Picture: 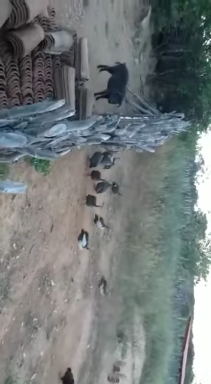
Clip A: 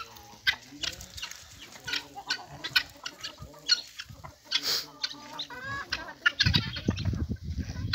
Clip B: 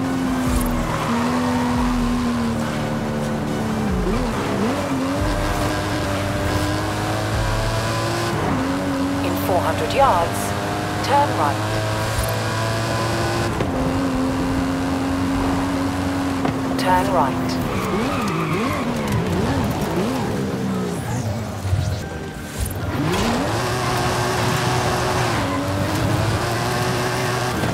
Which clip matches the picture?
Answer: A